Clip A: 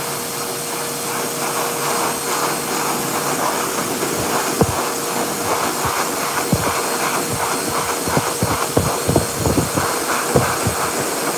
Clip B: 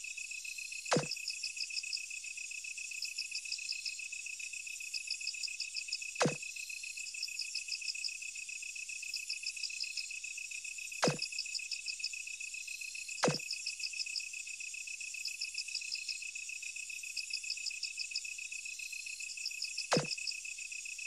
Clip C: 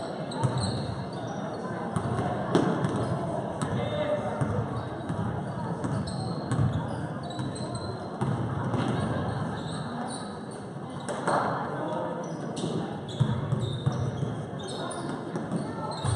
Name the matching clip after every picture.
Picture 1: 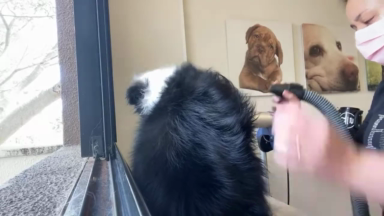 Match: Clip A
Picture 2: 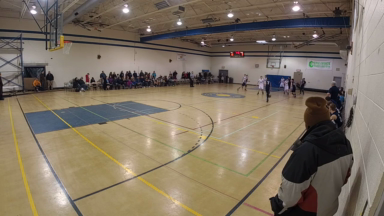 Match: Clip C